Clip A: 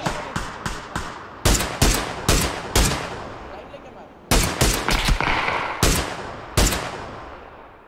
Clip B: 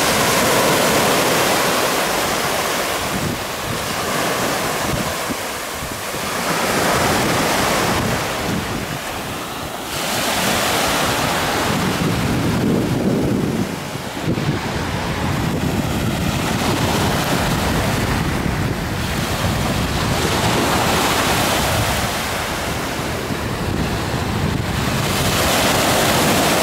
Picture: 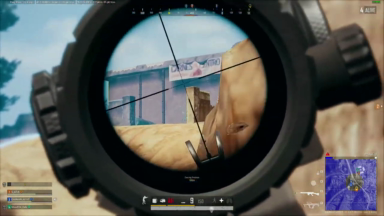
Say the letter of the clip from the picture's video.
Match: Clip A